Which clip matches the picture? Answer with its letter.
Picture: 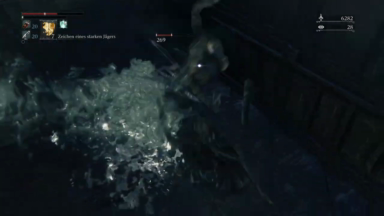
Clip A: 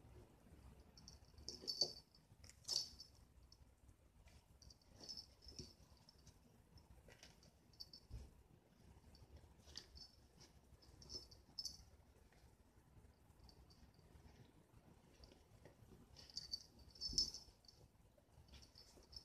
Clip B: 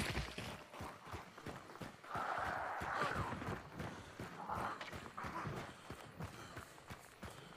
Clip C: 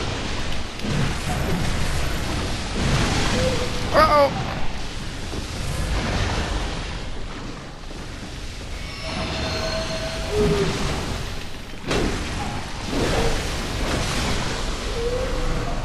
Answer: C